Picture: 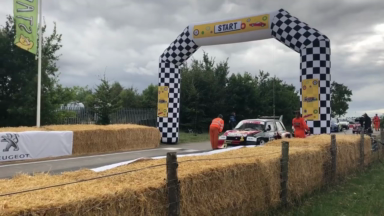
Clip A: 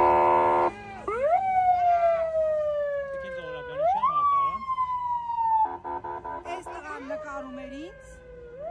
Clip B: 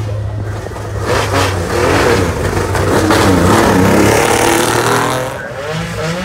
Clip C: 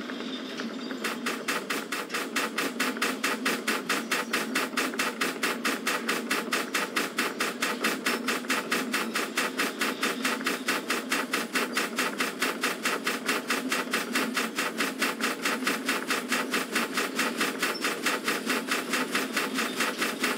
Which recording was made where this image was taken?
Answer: B